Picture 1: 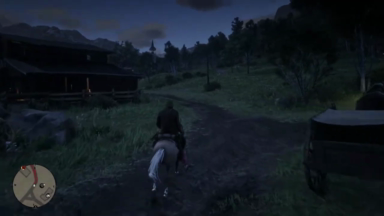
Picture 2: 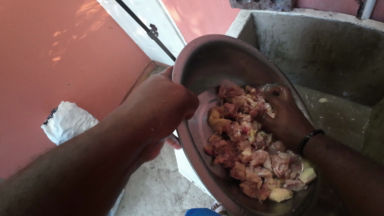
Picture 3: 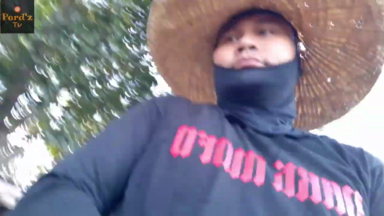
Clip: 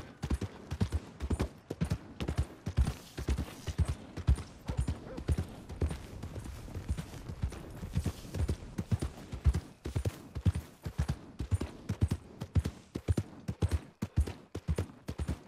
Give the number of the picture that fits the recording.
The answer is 1